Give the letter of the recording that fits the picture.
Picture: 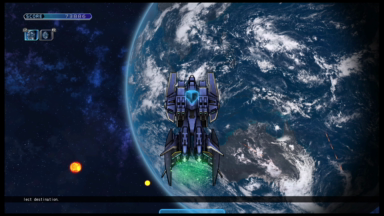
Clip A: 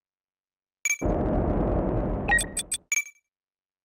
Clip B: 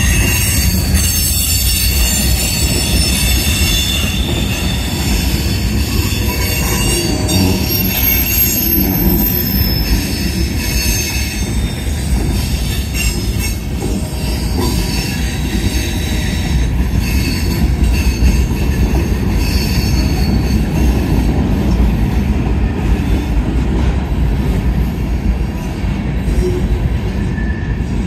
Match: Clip A